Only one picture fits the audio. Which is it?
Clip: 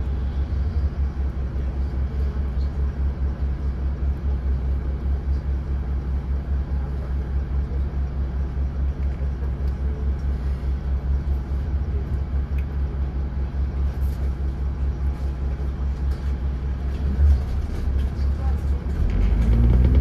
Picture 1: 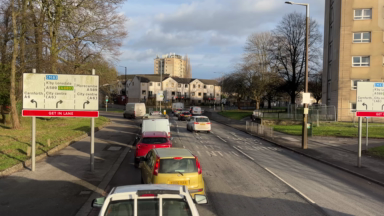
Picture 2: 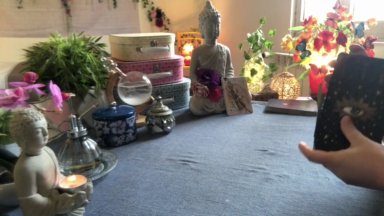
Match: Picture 1